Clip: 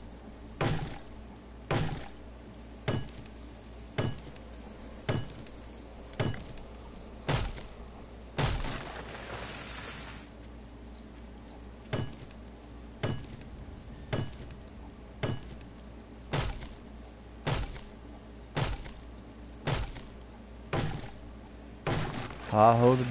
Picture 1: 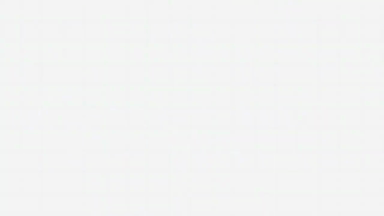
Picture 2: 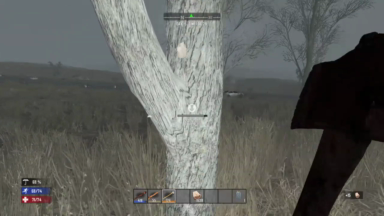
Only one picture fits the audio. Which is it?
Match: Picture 2